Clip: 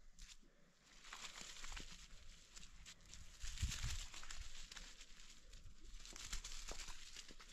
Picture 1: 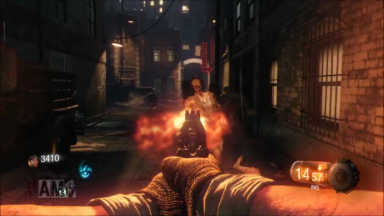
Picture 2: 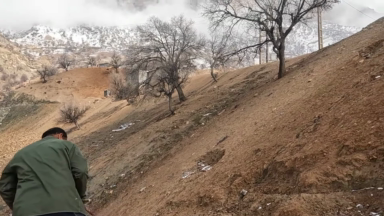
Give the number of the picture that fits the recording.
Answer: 2